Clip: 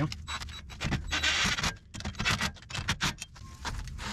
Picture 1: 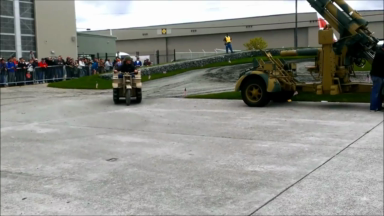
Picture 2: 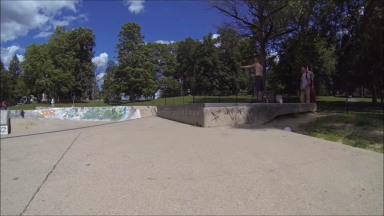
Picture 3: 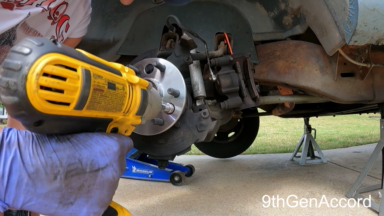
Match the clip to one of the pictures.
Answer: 3